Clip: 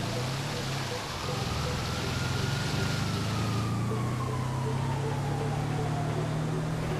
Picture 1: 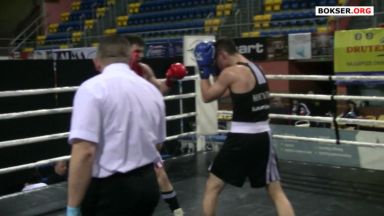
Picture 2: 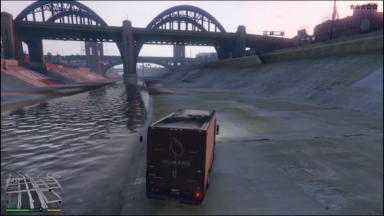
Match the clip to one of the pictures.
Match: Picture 2